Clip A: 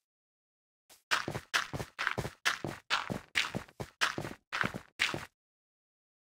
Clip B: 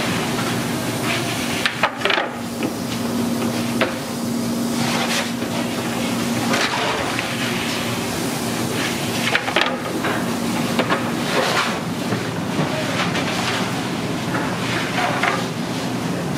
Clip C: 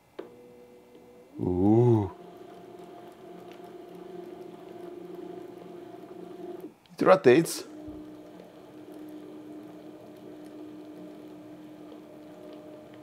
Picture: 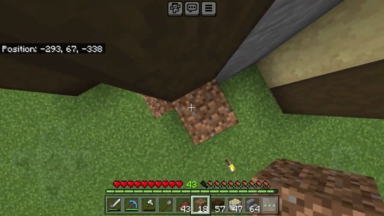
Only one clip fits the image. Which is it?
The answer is A